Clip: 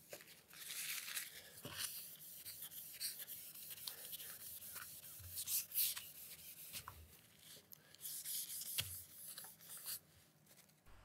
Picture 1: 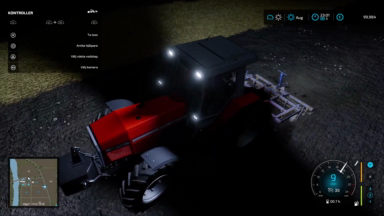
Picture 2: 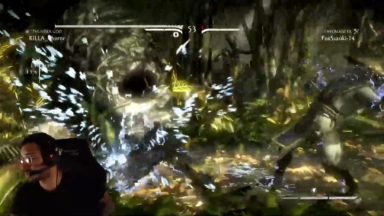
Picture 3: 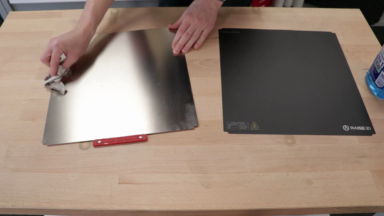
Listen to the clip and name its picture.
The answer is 3